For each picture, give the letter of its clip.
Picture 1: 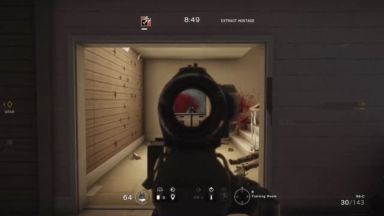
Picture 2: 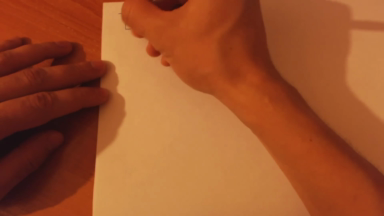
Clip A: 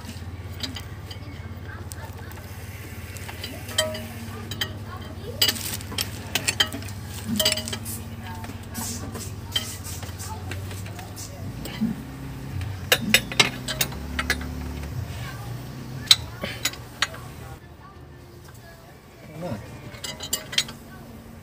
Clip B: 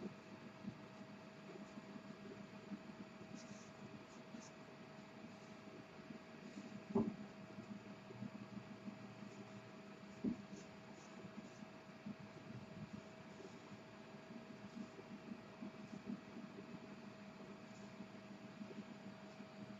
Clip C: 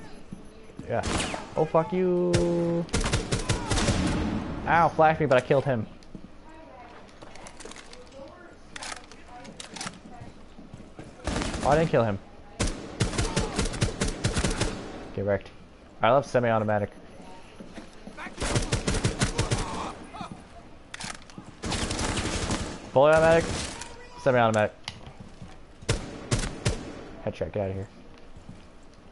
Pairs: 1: C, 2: B